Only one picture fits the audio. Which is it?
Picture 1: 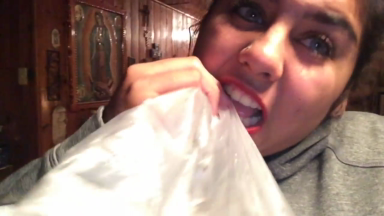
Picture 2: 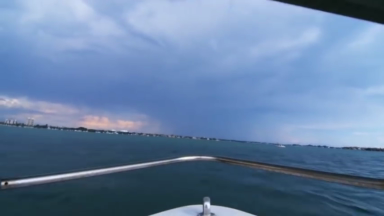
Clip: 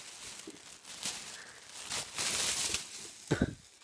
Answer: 1